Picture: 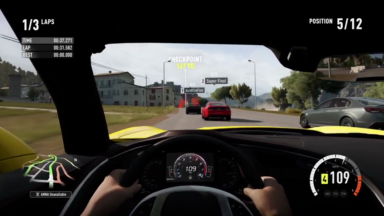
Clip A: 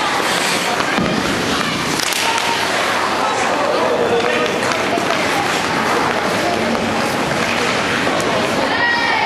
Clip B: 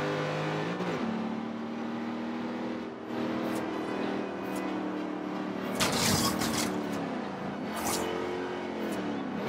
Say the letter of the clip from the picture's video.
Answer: B